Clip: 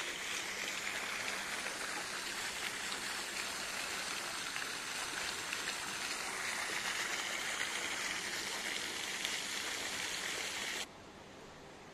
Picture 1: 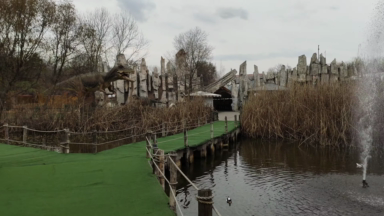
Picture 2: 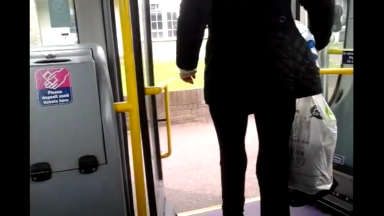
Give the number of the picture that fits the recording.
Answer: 1